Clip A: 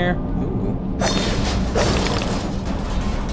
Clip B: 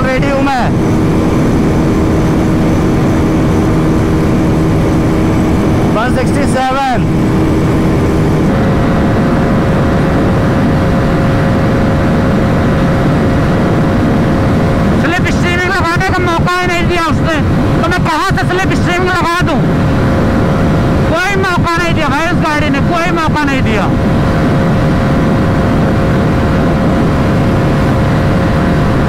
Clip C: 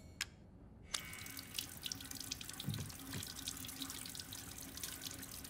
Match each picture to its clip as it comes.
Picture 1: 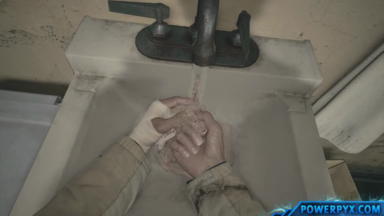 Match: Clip C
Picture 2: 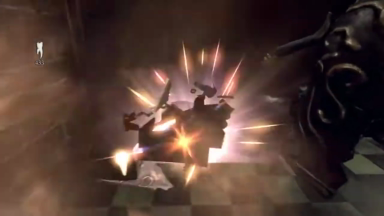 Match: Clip A